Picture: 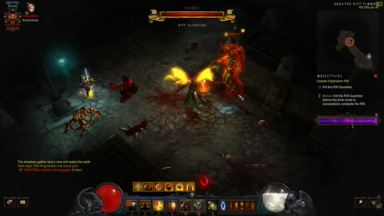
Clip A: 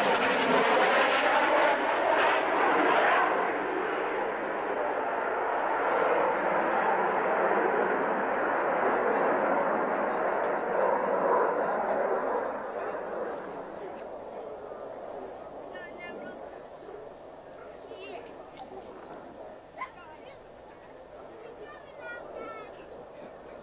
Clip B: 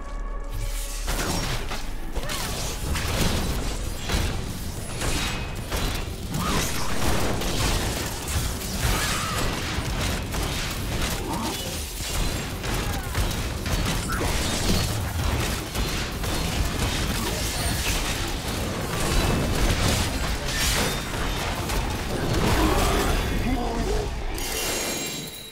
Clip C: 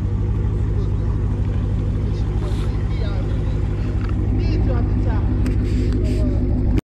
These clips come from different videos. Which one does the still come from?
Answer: B